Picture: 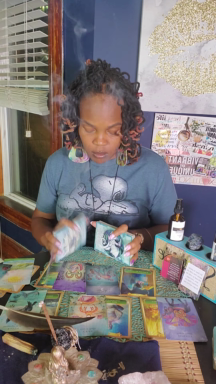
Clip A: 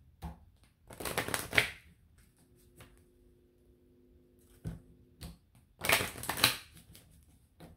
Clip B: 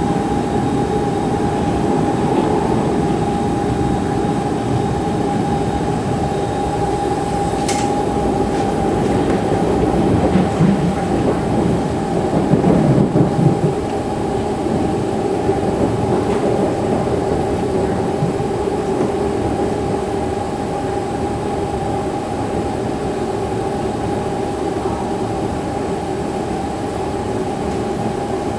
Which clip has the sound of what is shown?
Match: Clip A